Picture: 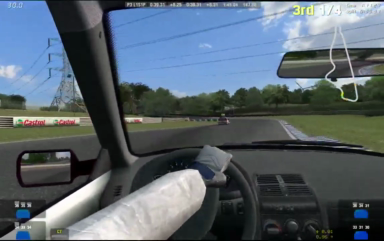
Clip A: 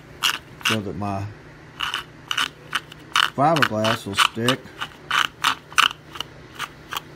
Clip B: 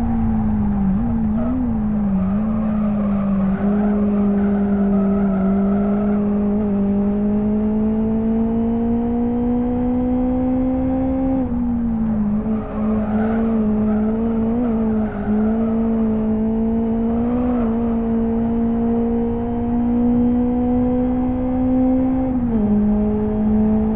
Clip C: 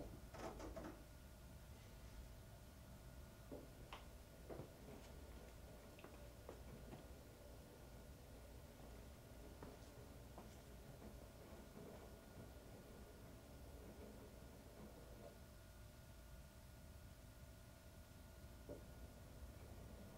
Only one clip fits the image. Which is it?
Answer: B